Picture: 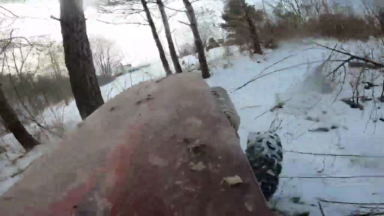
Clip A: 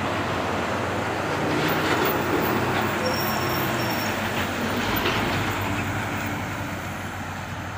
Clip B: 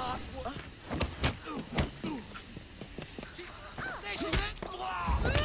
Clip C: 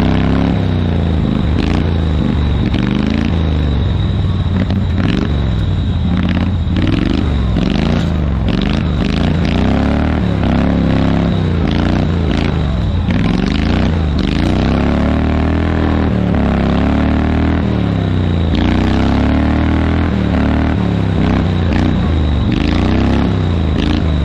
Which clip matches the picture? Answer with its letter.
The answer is C